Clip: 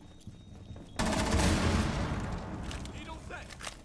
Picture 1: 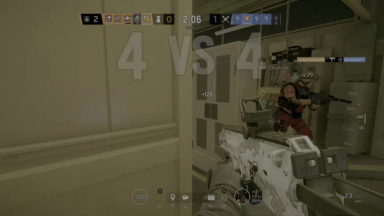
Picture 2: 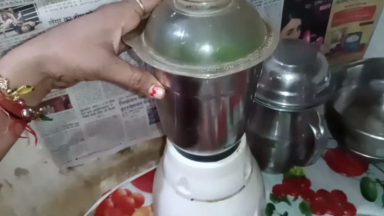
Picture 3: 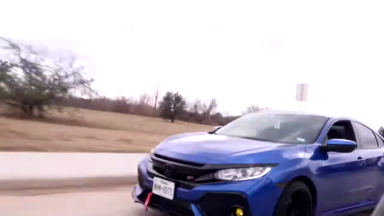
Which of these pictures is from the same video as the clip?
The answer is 1